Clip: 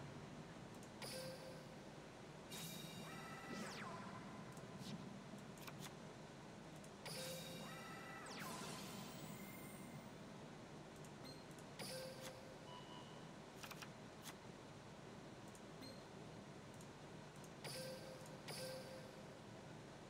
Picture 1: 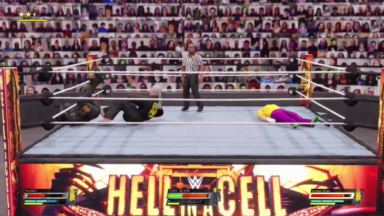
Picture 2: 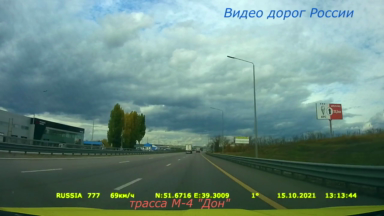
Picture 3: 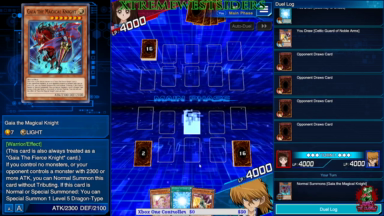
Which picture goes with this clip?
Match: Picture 3